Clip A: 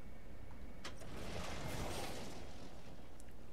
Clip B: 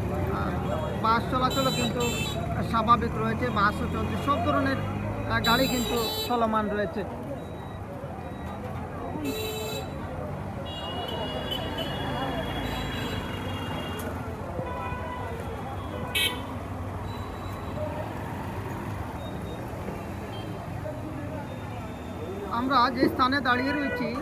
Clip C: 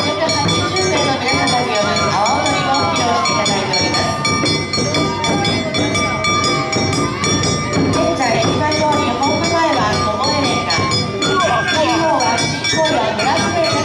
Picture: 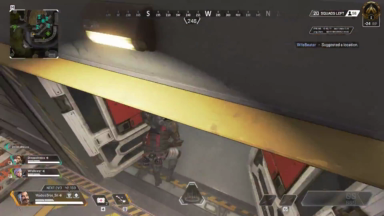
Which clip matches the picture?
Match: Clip A